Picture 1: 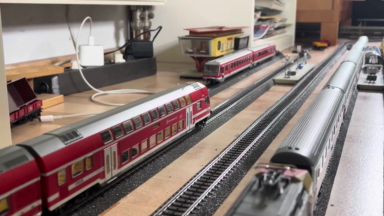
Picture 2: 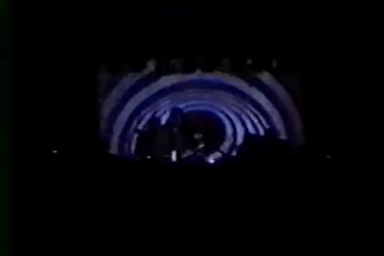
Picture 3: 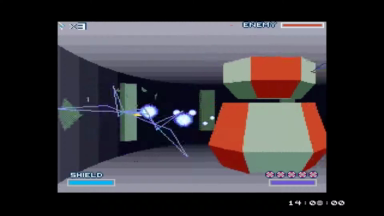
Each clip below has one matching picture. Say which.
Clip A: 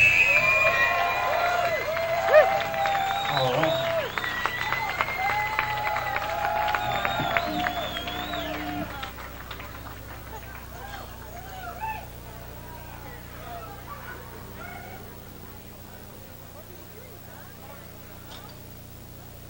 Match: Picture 2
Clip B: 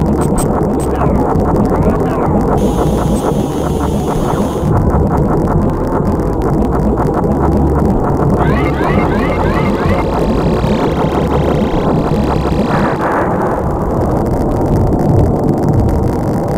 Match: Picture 3